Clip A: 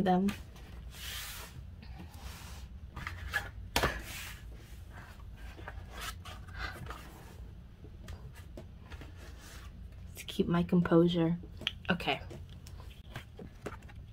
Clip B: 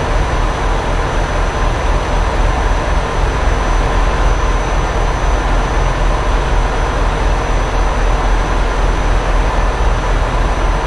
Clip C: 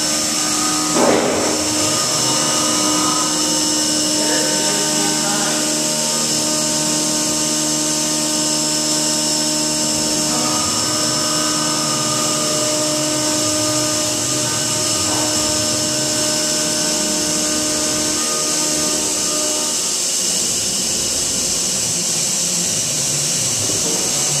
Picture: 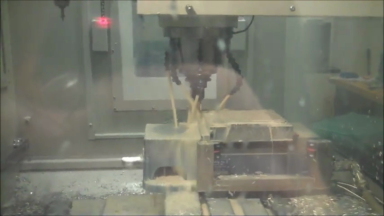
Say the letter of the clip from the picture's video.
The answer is C